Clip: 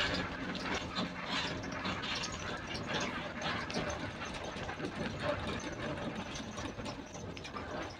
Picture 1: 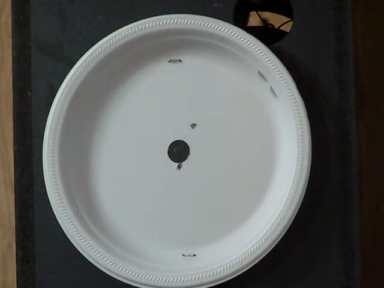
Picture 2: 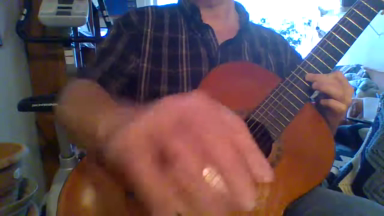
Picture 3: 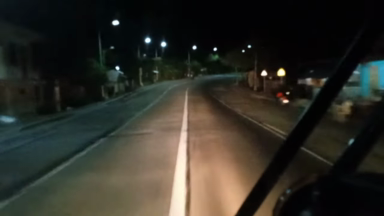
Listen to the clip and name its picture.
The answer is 3